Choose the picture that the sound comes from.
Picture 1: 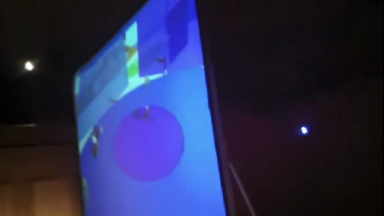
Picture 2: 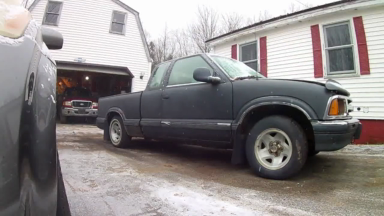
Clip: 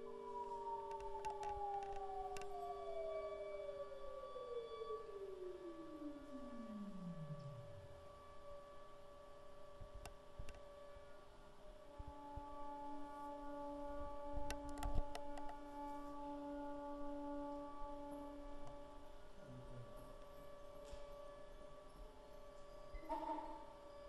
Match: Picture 1